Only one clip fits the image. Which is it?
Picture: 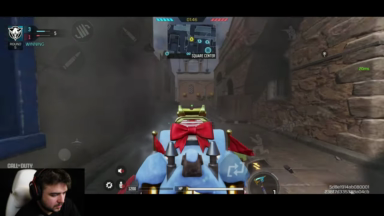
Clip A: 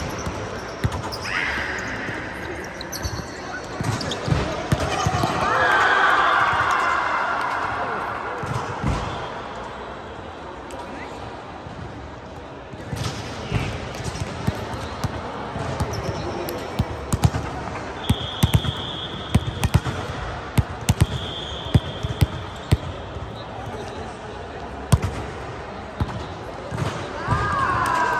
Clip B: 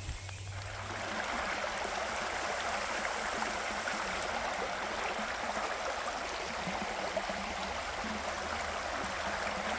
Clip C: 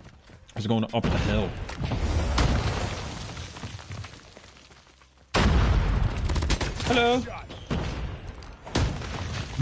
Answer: C